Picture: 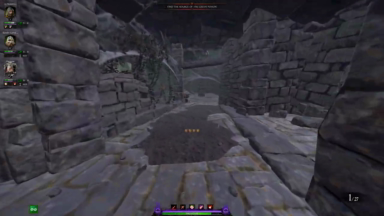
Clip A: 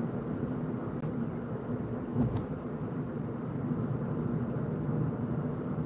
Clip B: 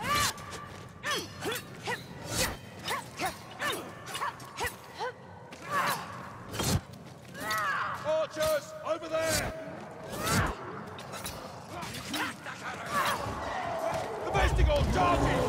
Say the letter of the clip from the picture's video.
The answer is B